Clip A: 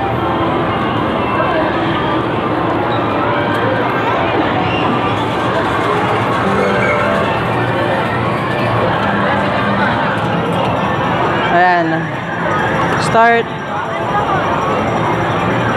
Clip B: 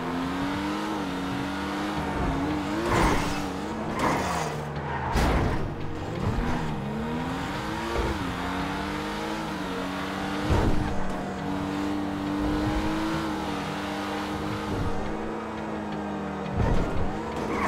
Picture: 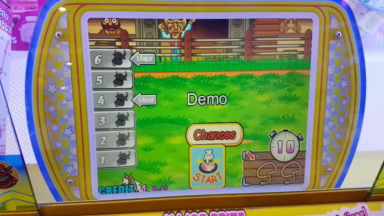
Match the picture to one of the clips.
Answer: A